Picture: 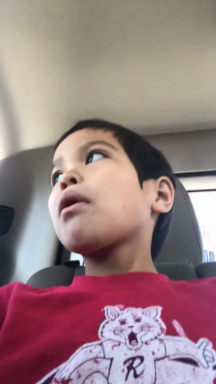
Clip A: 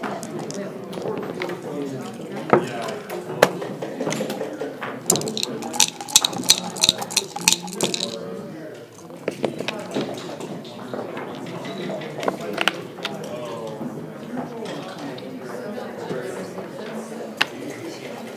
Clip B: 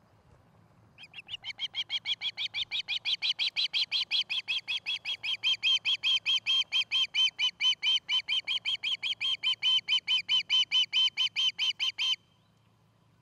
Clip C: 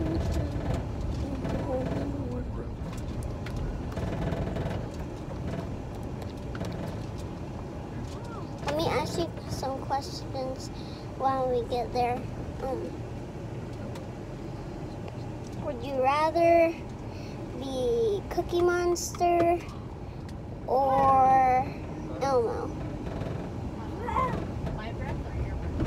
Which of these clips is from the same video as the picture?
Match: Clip C